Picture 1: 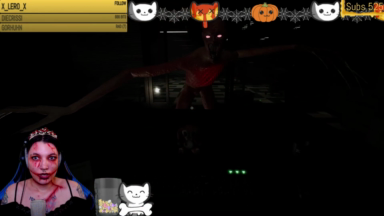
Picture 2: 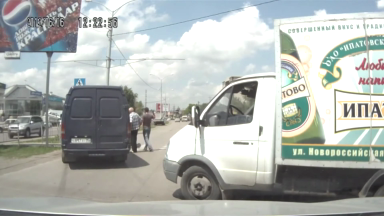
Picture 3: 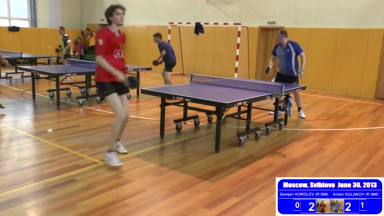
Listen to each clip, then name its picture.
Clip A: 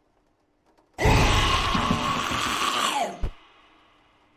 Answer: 1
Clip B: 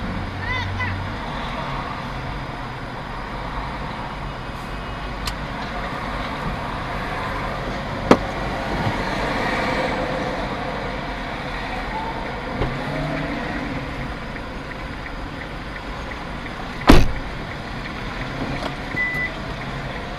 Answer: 2